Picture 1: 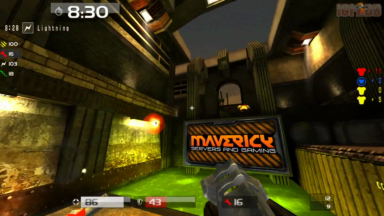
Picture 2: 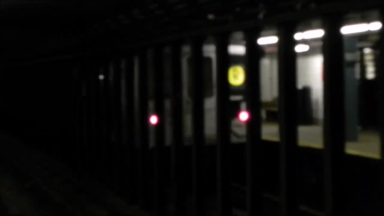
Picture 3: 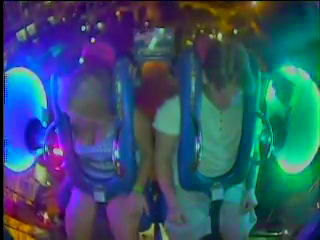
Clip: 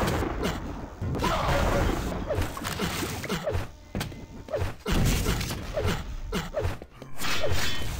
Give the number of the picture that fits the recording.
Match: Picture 1